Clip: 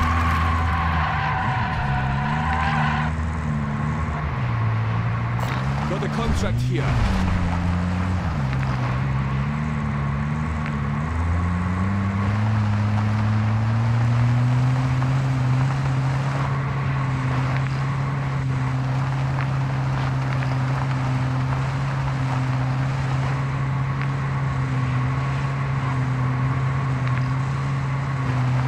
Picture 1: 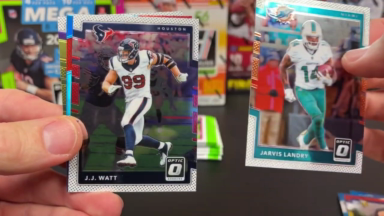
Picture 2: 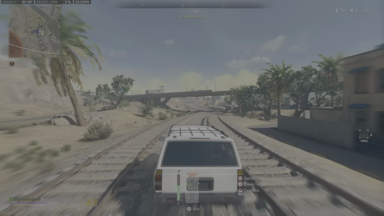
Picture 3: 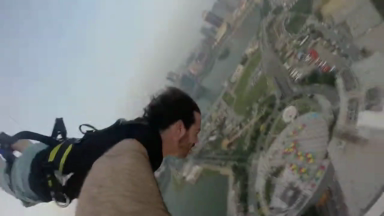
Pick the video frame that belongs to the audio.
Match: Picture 2